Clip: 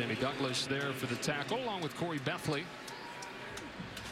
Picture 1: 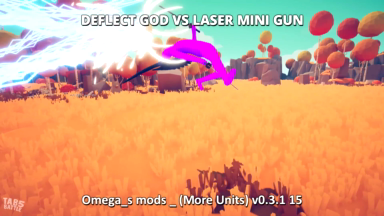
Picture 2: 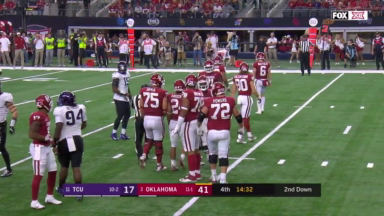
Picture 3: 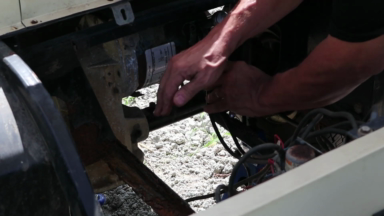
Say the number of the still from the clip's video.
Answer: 2